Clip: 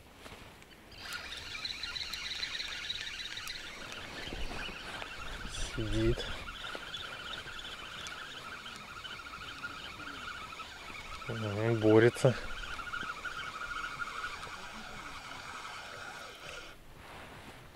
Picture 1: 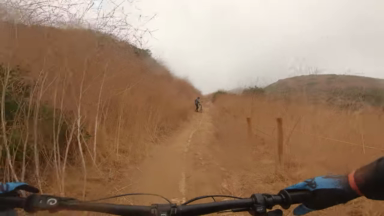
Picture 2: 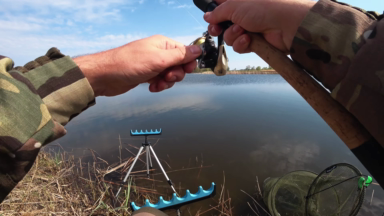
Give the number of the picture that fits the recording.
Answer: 2